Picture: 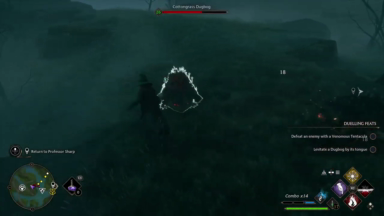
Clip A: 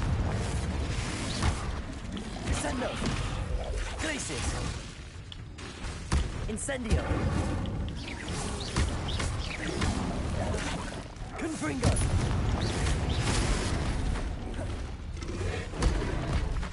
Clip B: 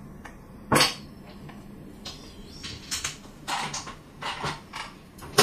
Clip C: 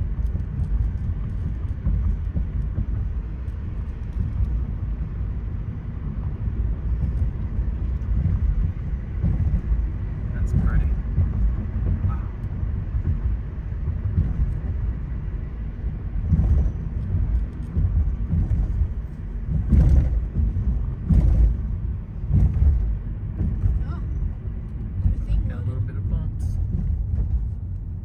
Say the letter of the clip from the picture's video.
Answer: A